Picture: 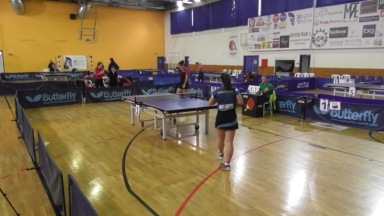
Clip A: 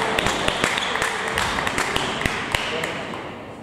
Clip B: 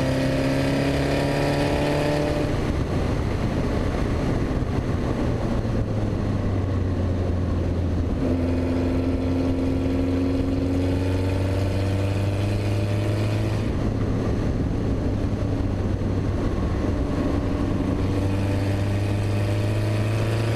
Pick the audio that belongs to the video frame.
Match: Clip A